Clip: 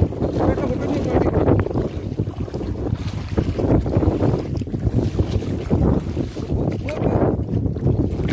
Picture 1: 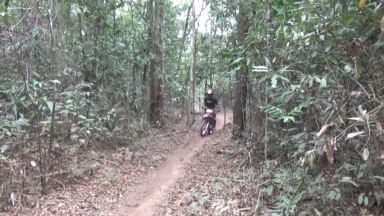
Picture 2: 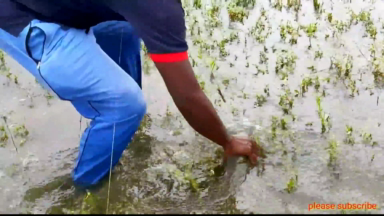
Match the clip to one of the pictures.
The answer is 2